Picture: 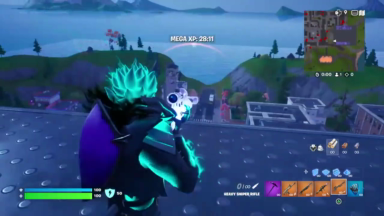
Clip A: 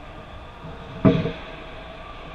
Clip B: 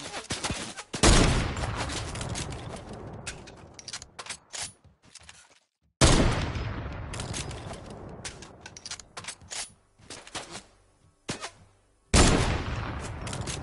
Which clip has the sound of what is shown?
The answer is B